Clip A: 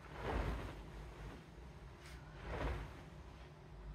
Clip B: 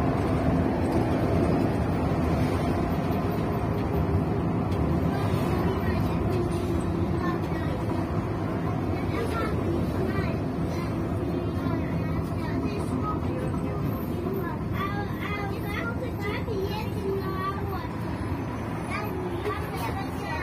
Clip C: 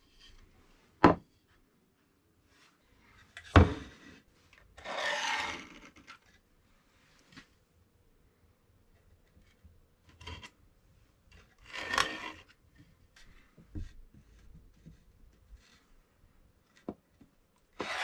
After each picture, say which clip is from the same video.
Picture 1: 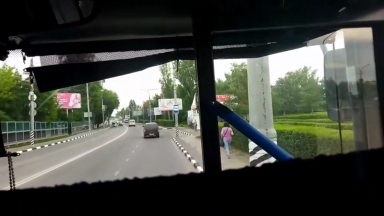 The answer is B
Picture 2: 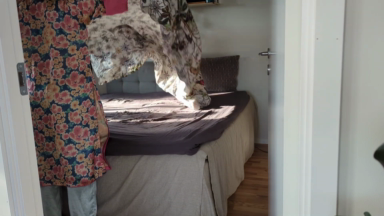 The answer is A